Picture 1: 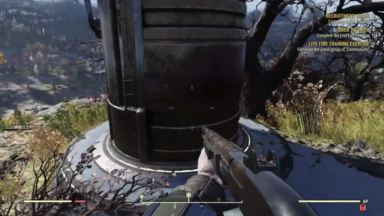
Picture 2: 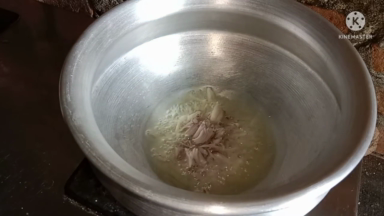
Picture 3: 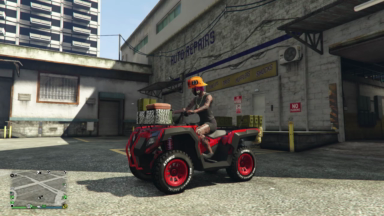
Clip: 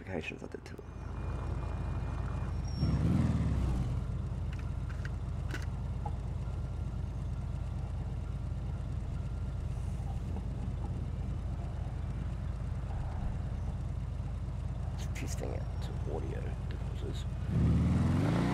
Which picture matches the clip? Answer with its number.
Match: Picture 3